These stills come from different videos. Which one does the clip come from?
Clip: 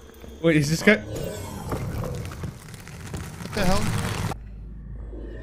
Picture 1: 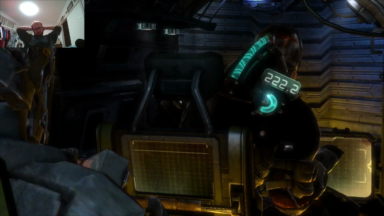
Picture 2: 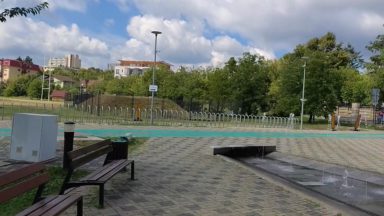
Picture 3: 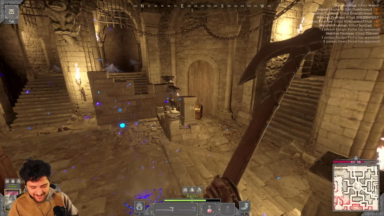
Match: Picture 3